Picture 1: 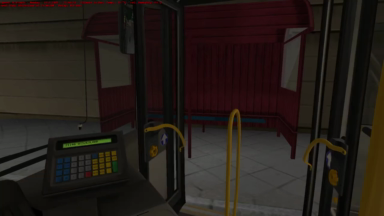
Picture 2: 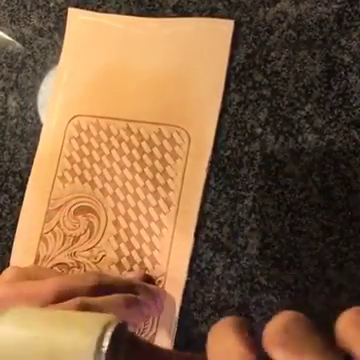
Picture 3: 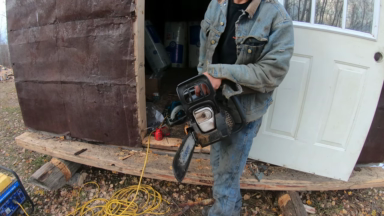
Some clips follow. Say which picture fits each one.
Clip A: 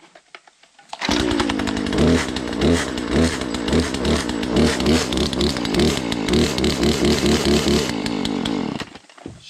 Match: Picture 3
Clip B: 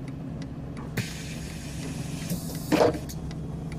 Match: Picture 1